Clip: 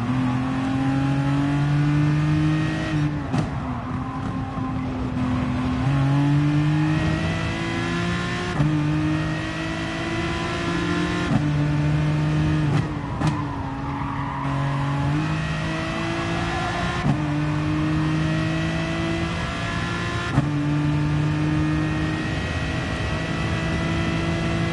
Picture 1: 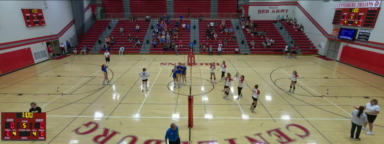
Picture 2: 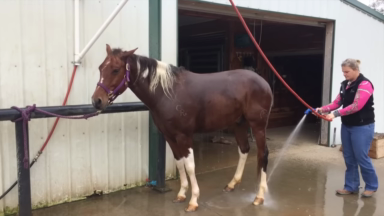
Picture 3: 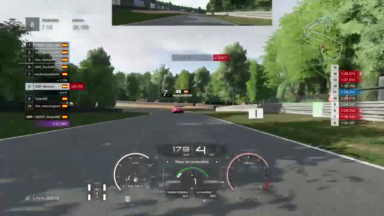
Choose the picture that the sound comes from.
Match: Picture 3